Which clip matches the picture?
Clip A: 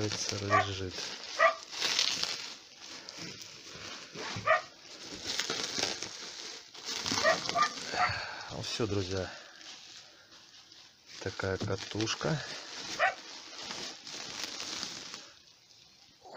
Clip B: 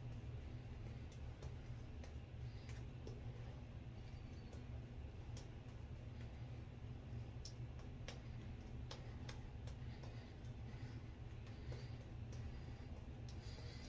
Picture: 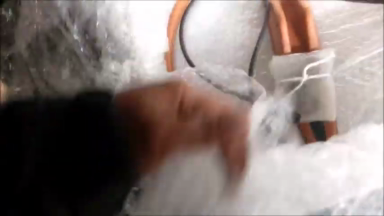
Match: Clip A